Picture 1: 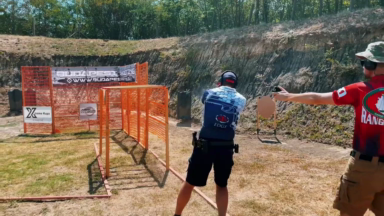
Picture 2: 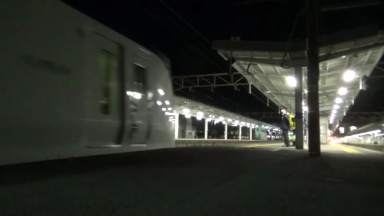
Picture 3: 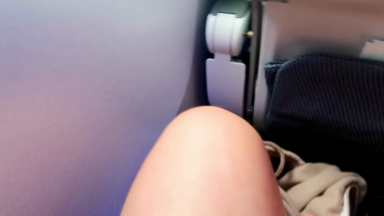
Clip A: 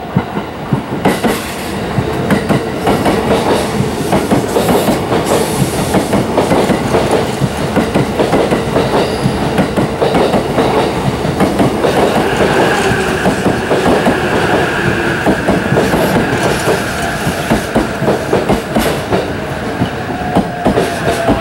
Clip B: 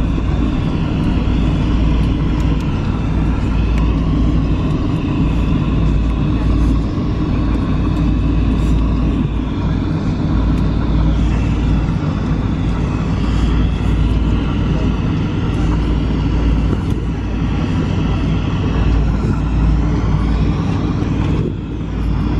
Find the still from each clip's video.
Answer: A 2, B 3